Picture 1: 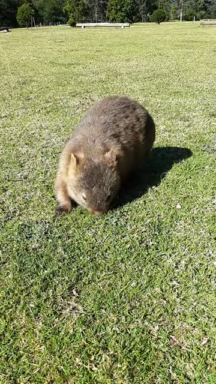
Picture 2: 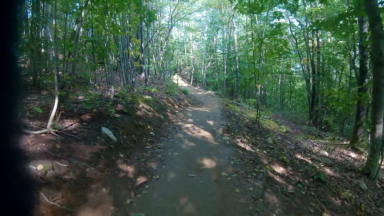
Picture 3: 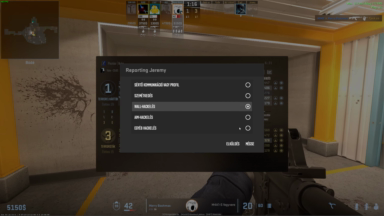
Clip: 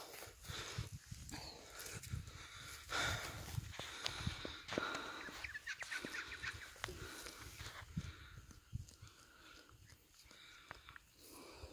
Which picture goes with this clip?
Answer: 1